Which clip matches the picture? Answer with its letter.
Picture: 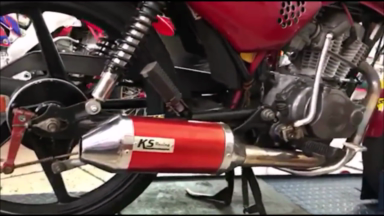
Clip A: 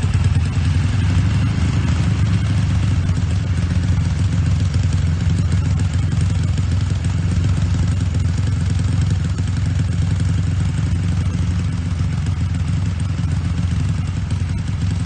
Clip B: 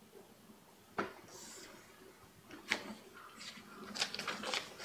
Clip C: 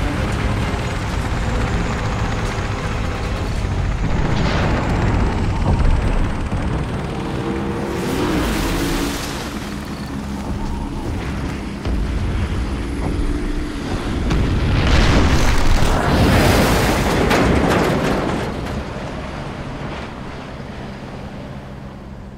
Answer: A